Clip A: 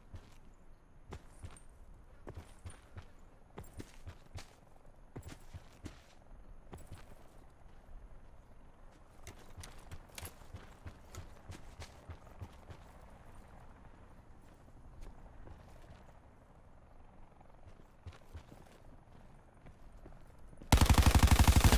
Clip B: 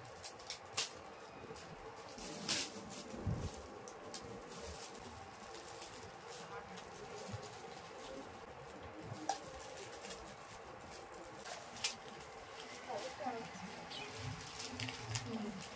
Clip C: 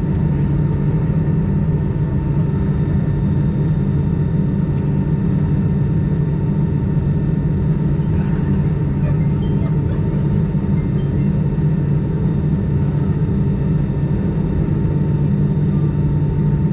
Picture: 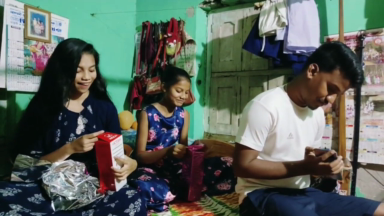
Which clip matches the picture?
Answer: B